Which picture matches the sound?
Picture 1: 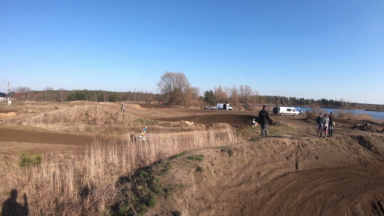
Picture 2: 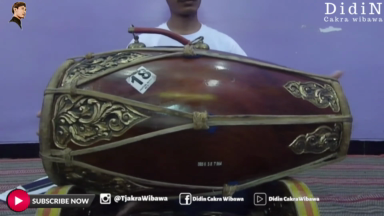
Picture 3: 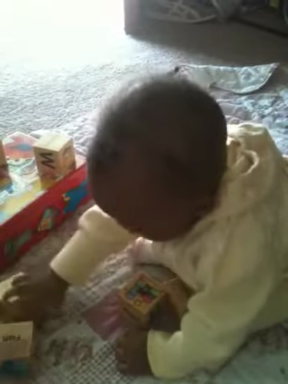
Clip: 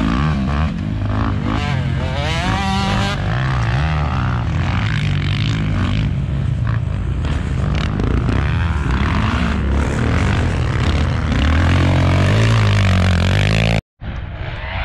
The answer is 1